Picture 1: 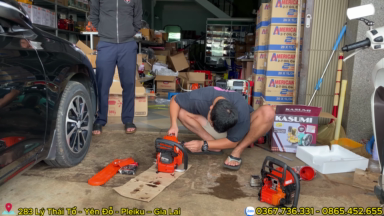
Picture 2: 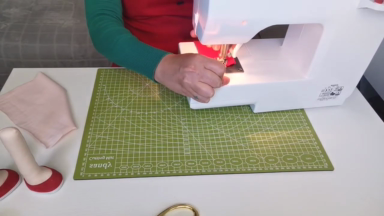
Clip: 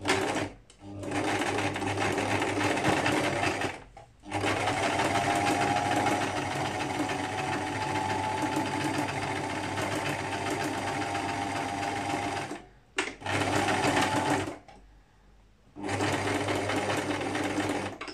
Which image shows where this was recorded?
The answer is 2